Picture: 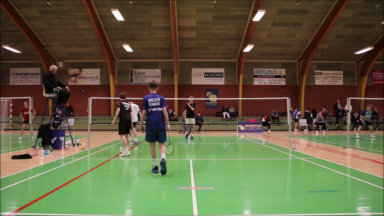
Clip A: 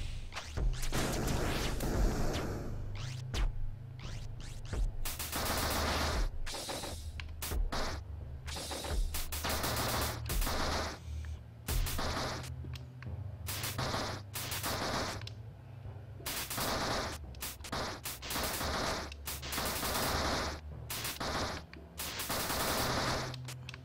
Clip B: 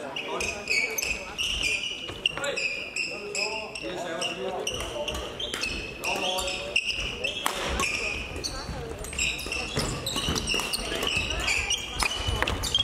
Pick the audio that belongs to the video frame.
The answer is B